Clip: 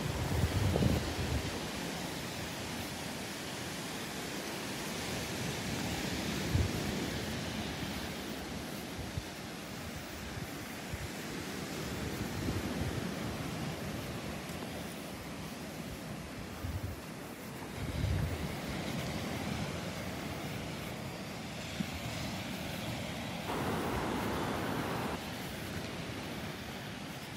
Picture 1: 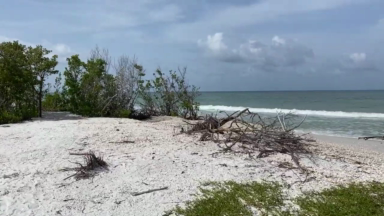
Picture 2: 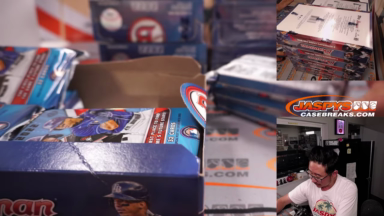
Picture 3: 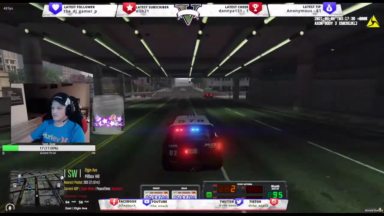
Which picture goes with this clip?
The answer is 1